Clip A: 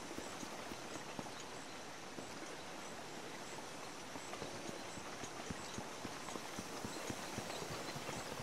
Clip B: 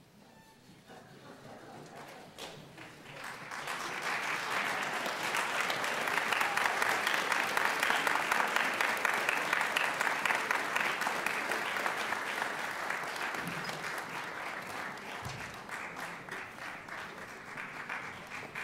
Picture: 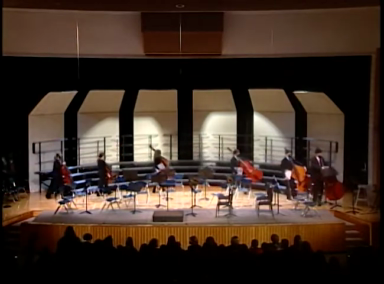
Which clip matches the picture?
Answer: B